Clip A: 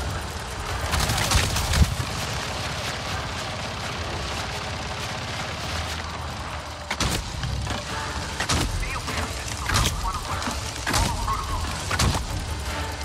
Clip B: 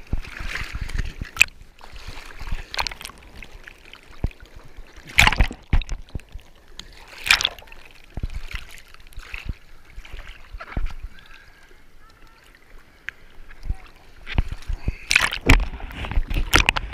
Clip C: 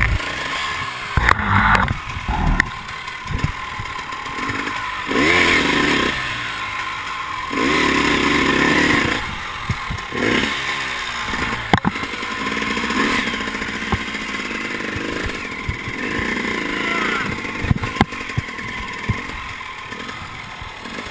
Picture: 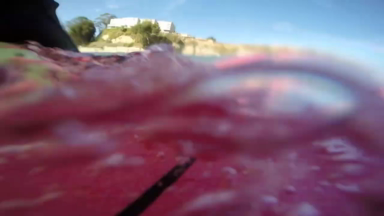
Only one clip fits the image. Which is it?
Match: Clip B